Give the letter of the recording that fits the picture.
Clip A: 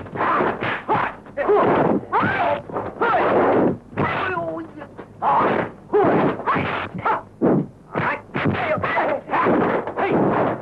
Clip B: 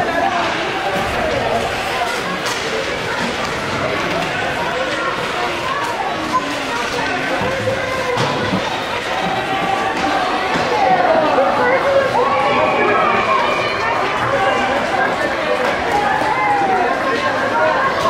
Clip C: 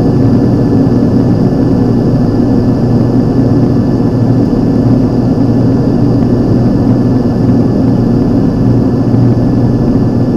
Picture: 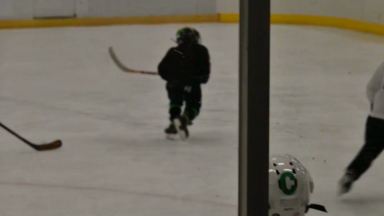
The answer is B